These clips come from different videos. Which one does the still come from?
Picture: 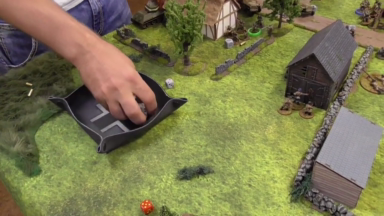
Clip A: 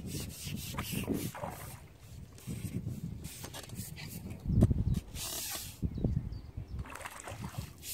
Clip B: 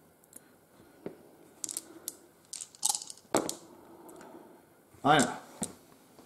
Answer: B